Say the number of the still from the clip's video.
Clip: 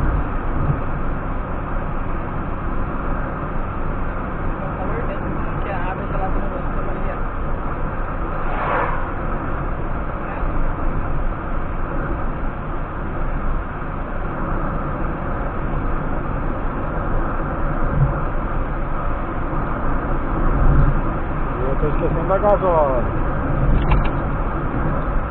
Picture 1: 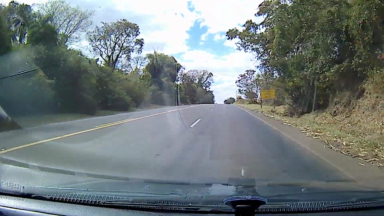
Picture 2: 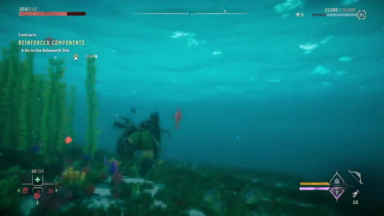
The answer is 1